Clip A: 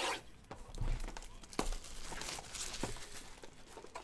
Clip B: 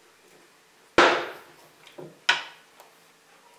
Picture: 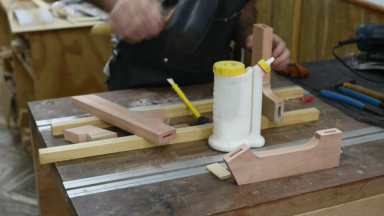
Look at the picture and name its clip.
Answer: B